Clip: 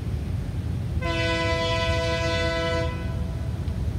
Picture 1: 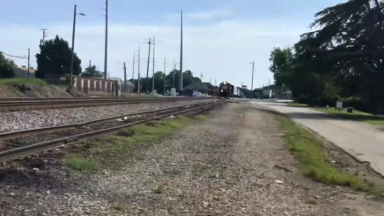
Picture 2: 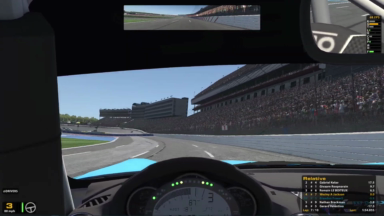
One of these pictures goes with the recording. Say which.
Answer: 1